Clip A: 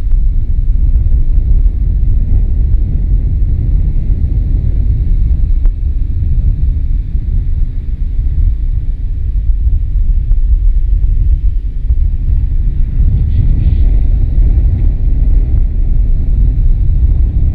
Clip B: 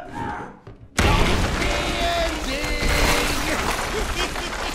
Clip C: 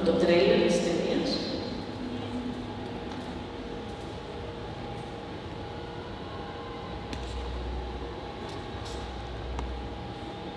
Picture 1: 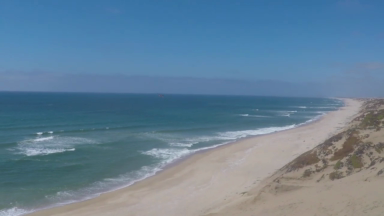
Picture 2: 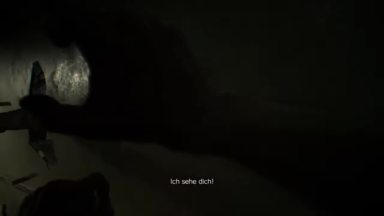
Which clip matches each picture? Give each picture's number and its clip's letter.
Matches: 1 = A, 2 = B